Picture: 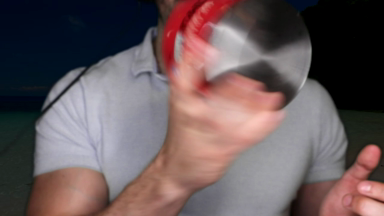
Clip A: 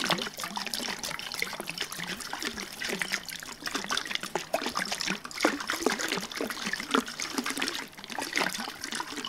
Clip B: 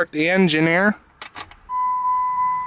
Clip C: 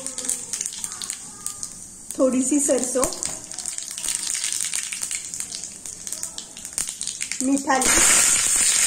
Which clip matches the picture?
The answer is A